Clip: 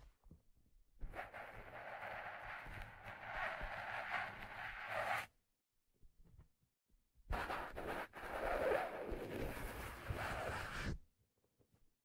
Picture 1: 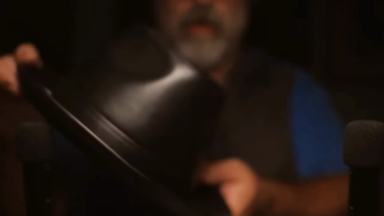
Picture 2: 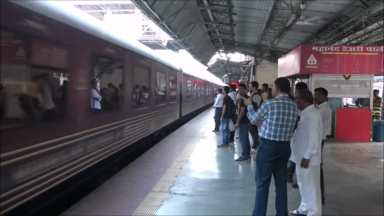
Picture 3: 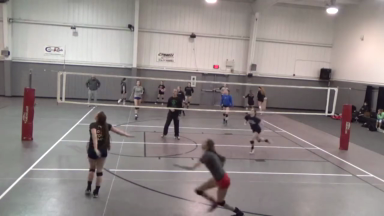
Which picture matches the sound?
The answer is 1